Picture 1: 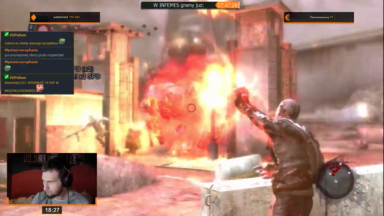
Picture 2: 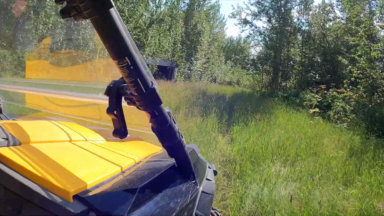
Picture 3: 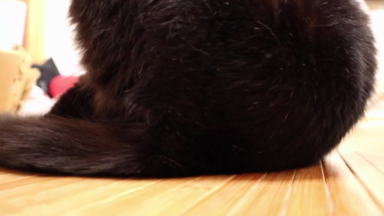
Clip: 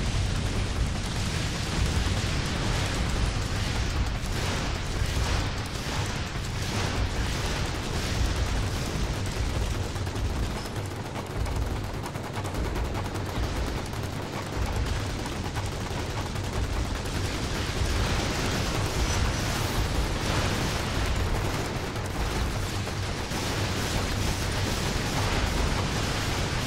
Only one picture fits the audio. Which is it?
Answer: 1